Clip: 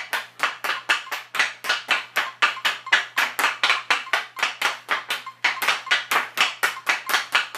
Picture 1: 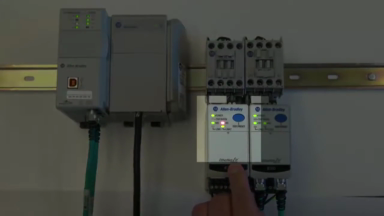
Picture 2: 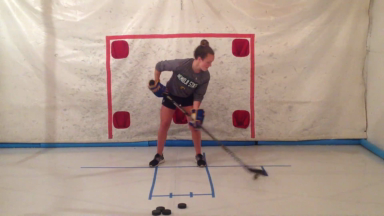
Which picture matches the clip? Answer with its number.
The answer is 2